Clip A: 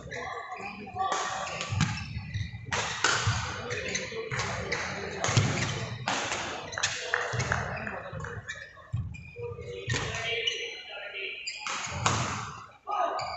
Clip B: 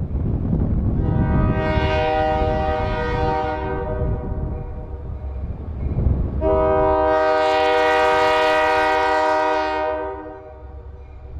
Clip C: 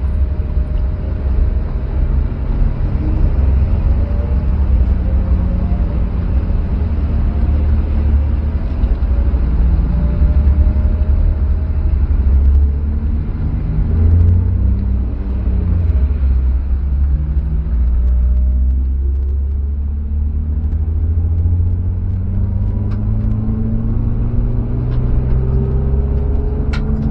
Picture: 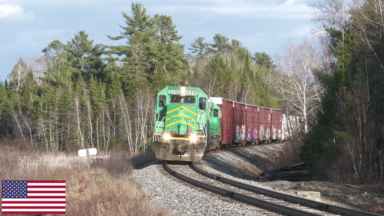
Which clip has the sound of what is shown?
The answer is B